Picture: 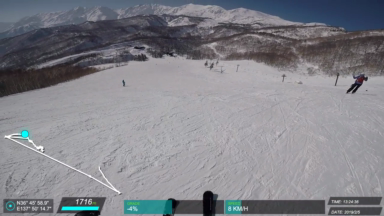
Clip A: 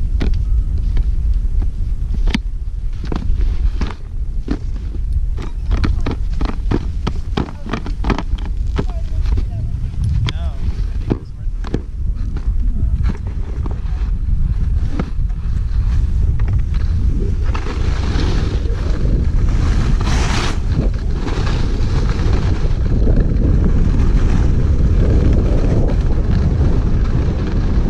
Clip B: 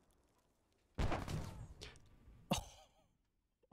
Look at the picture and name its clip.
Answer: A